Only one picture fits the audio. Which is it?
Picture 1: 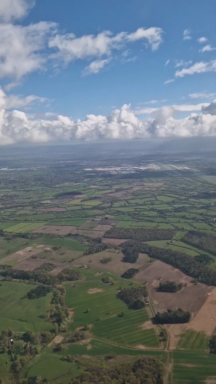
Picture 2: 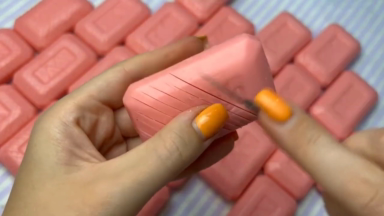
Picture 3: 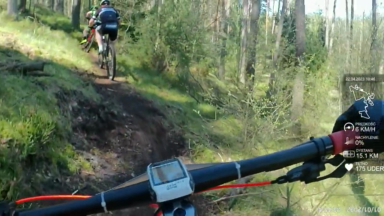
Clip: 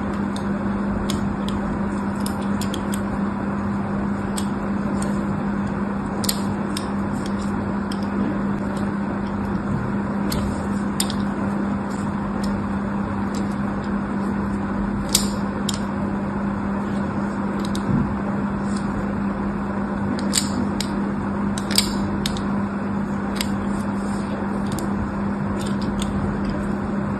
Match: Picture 2